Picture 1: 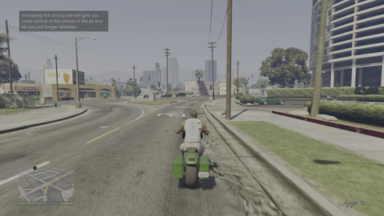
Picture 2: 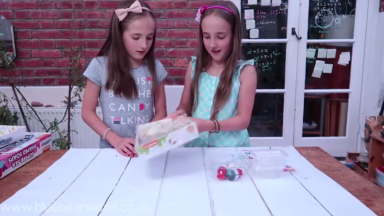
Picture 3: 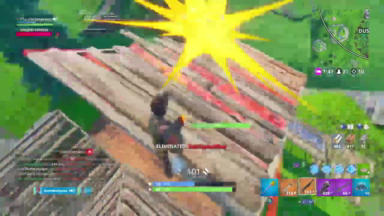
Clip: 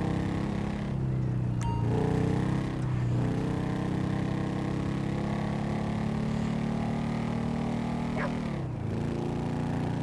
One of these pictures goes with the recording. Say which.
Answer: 1